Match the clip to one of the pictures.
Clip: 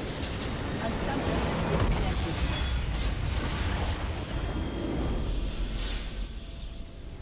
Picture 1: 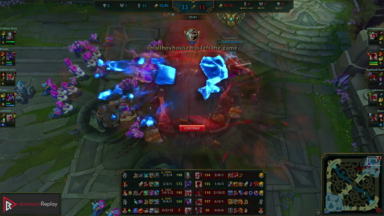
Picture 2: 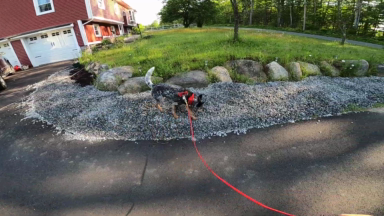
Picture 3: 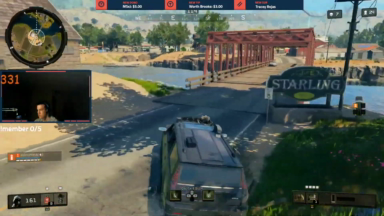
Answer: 1